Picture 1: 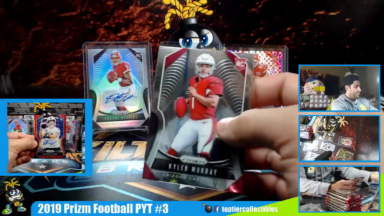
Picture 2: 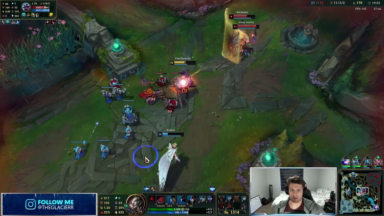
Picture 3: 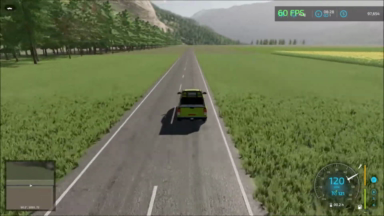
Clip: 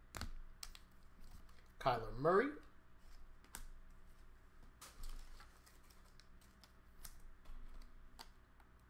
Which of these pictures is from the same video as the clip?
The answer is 1